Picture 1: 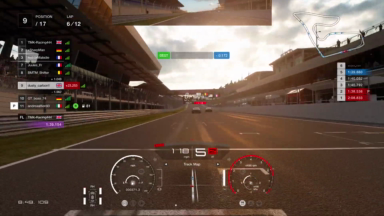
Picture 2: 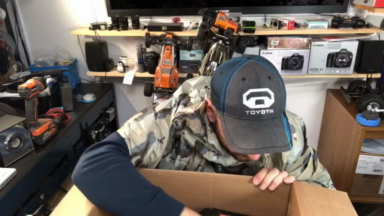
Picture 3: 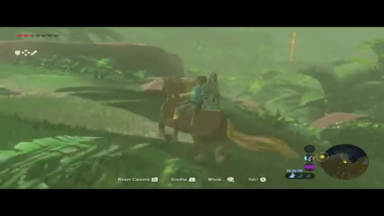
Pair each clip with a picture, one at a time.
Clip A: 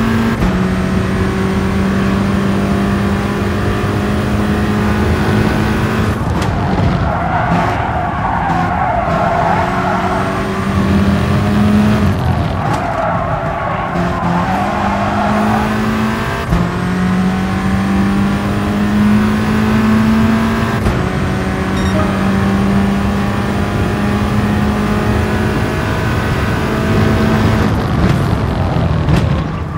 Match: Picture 1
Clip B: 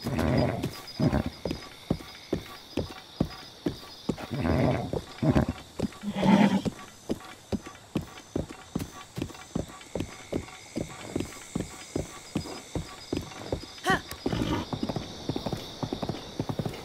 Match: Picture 3